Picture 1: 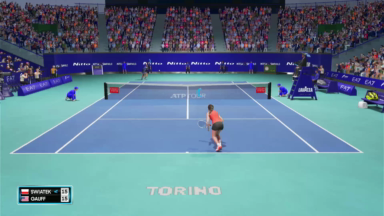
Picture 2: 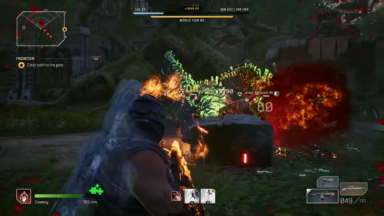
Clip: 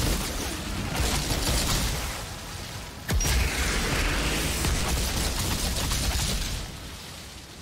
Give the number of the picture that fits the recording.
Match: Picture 2